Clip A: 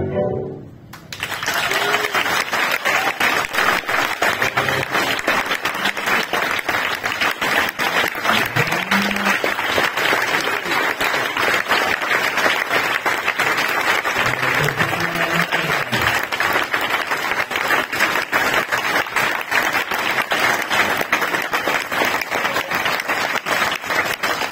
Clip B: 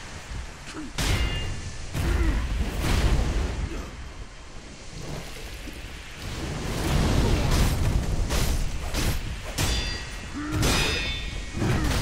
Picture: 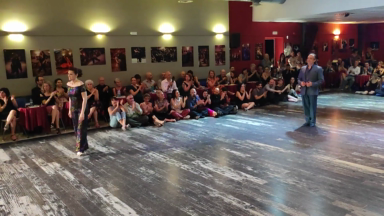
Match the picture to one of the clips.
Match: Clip A